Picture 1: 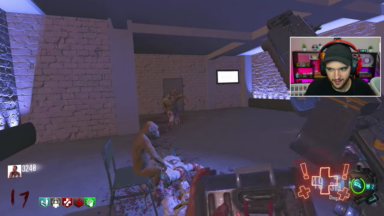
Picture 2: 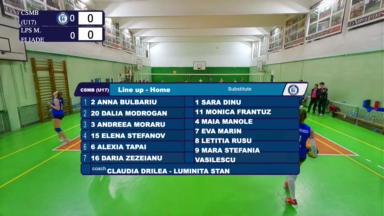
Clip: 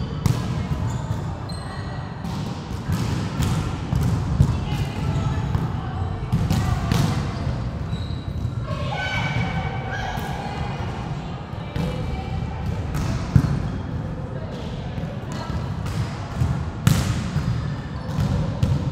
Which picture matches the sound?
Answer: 2